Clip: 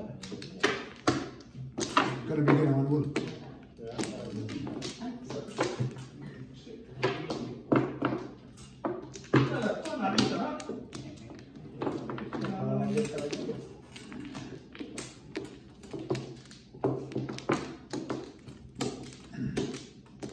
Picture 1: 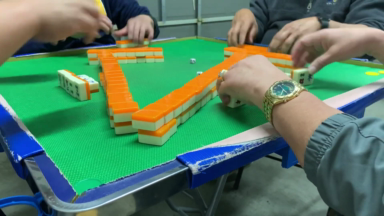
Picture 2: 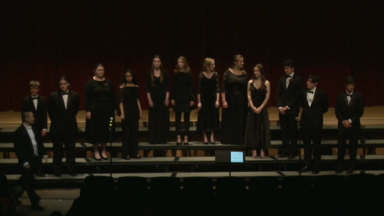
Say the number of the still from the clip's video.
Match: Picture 1